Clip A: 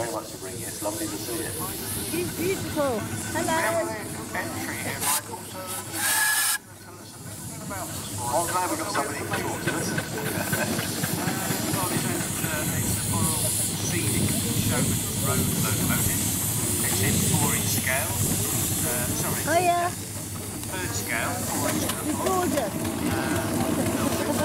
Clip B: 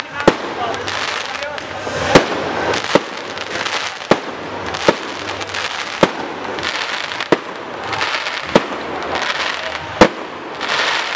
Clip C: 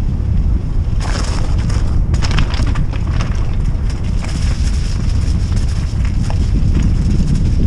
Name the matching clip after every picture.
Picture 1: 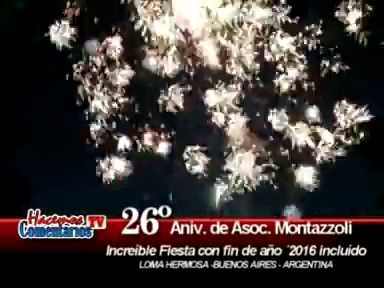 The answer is B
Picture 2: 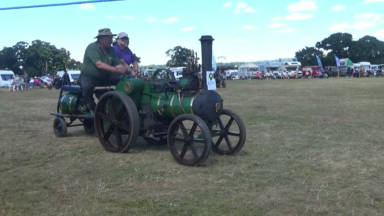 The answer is A